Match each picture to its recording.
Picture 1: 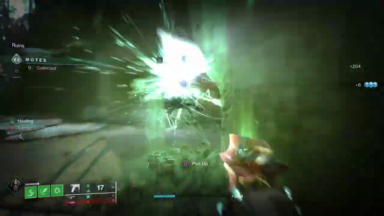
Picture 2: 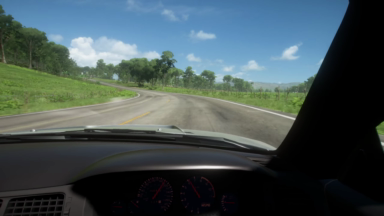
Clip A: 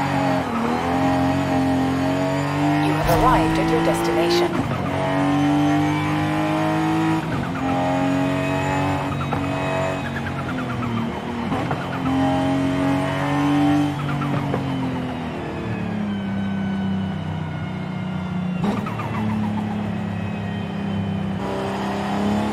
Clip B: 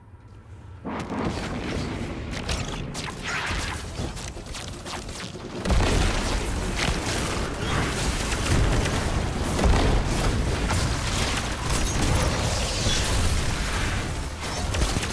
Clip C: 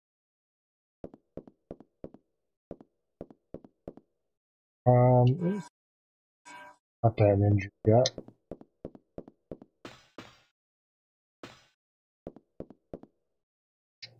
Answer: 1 B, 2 A